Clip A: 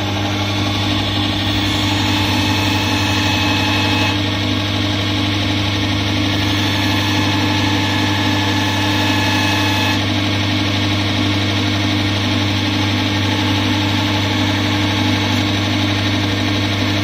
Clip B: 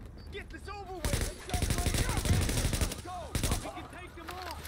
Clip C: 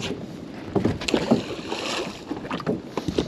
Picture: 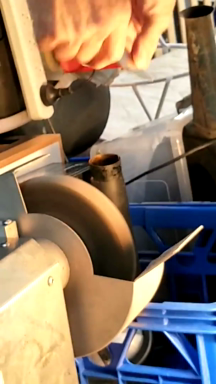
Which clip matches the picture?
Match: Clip A